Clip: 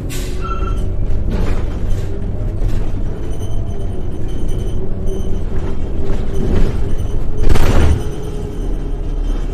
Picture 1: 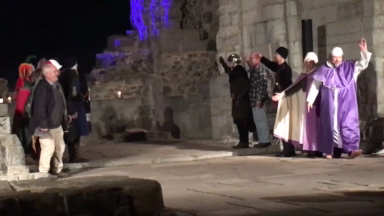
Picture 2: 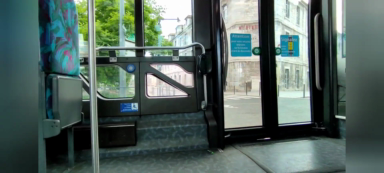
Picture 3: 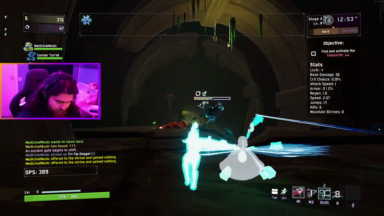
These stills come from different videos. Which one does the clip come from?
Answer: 2